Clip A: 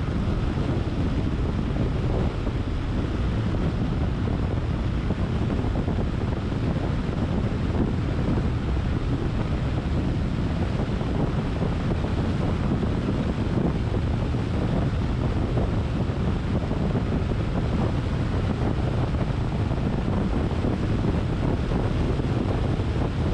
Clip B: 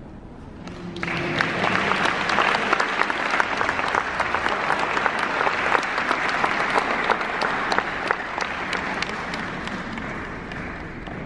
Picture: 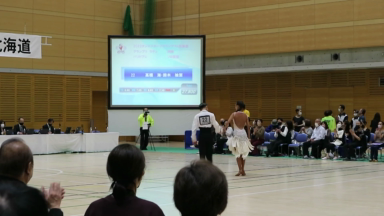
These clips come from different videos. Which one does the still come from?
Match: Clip B